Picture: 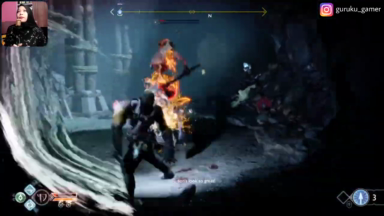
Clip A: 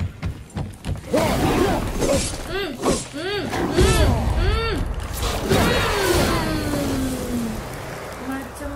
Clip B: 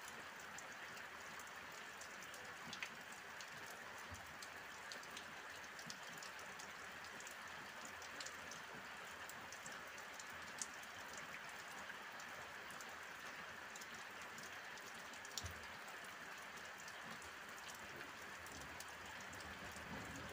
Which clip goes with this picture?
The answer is A